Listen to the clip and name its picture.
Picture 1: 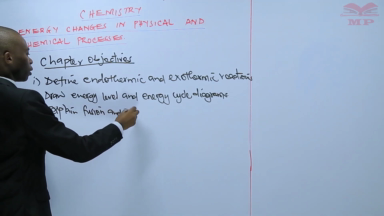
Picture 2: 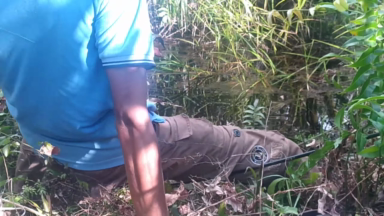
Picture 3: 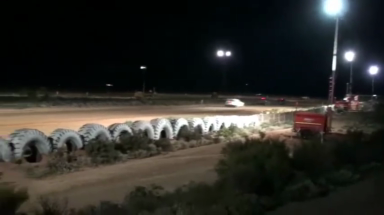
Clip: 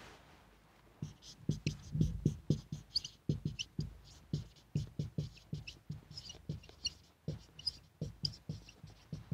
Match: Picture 1